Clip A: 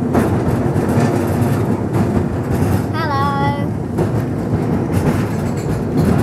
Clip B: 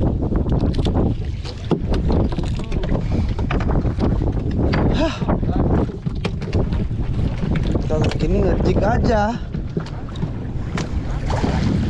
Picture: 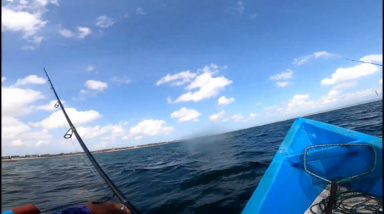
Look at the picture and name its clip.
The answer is B